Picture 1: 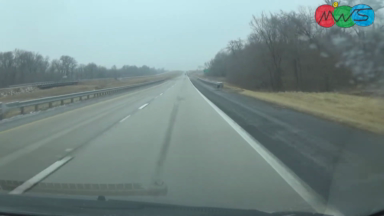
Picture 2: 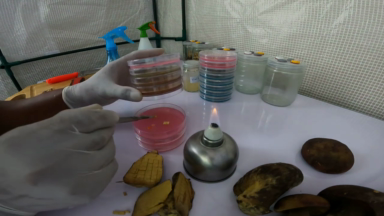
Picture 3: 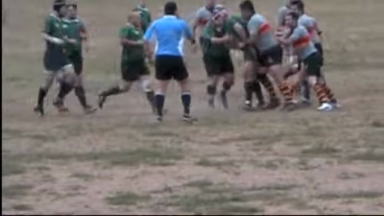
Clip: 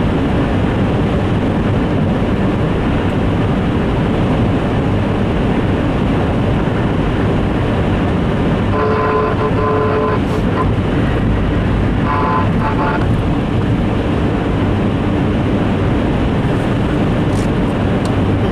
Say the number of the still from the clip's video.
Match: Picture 1